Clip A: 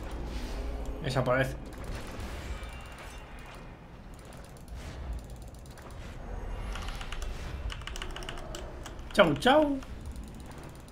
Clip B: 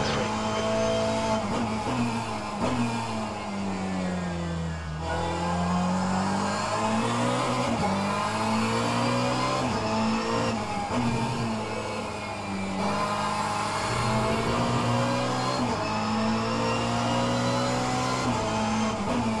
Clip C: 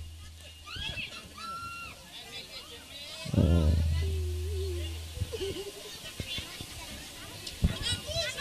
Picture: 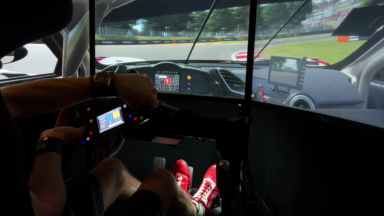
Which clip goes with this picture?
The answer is B